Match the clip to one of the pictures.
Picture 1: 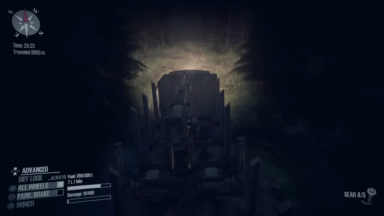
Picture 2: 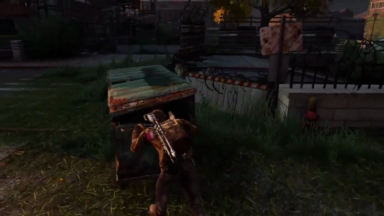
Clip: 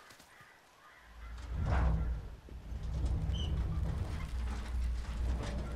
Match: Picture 2